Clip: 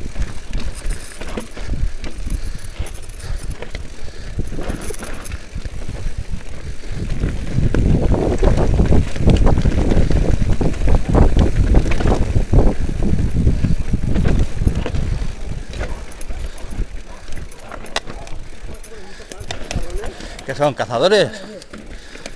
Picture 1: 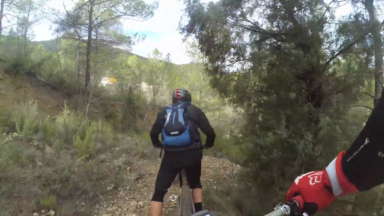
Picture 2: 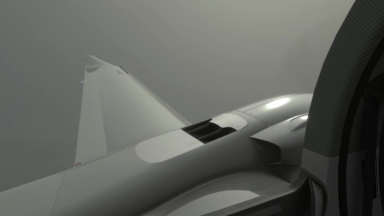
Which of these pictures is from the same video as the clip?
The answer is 1